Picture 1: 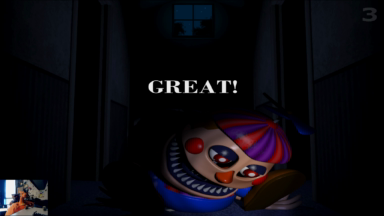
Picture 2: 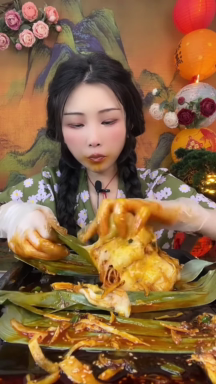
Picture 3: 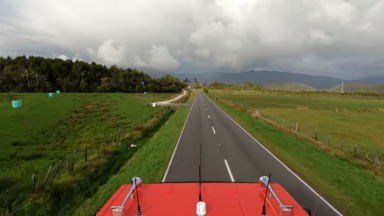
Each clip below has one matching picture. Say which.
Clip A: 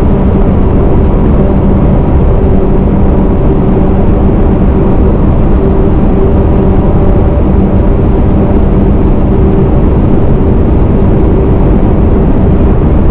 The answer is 3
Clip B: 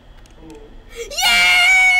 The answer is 1